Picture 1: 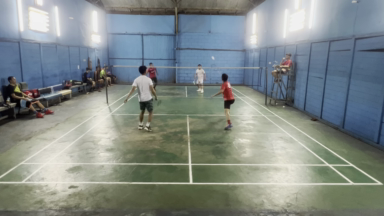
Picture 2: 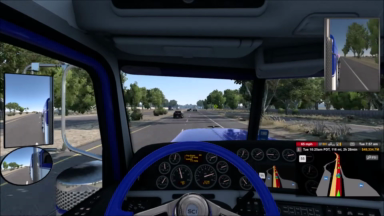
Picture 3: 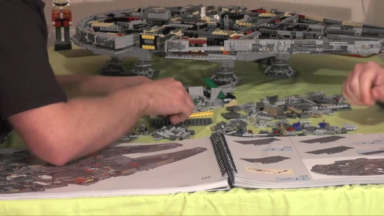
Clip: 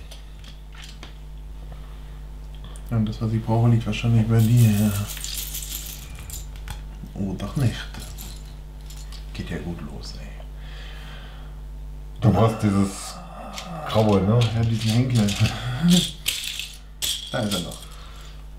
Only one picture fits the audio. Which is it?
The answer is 3